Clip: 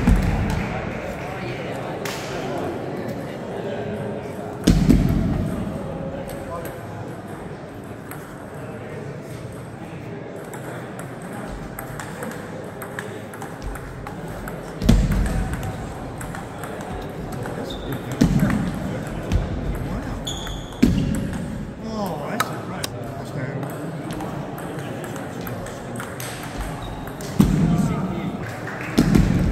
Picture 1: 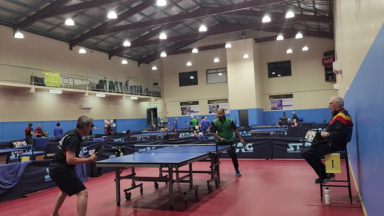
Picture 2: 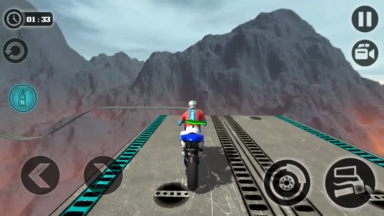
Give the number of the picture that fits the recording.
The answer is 1